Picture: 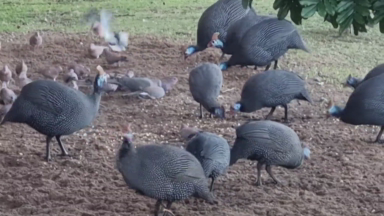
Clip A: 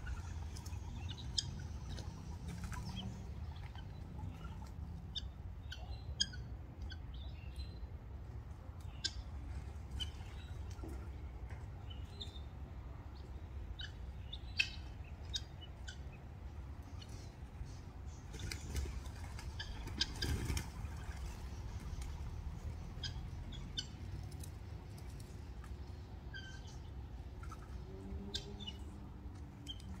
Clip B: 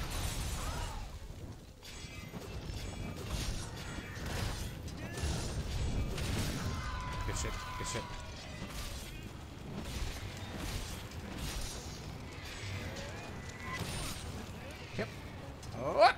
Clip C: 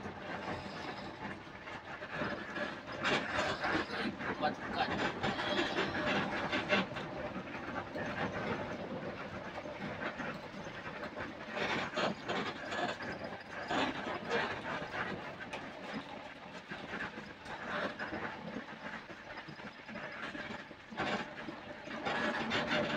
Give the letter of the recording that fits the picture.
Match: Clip A